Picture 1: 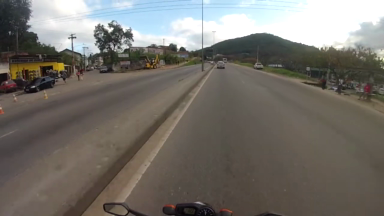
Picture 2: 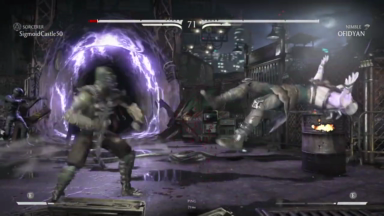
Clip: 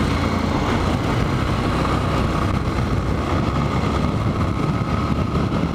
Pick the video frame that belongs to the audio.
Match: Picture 1